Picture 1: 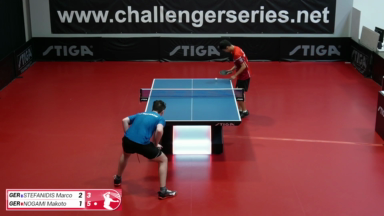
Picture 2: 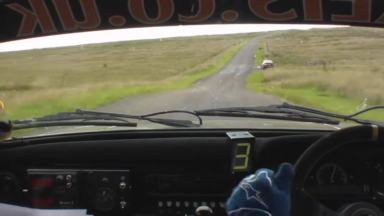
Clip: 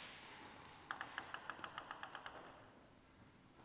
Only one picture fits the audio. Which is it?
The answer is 1